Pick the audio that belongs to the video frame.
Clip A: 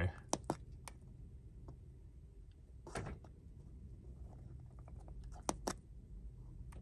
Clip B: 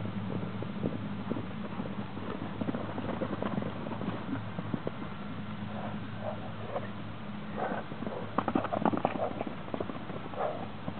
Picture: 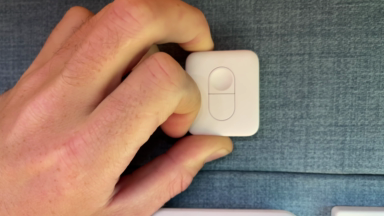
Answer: A